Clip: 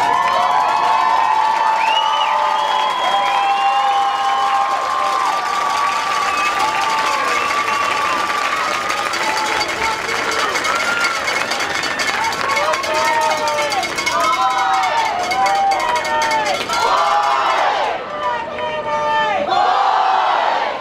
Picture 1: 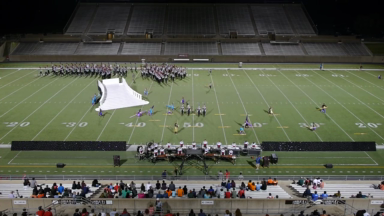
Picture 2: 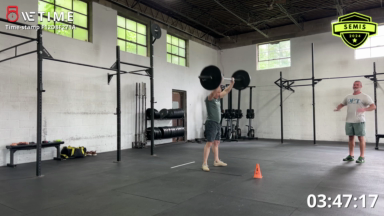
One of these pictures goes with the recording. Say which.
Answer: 1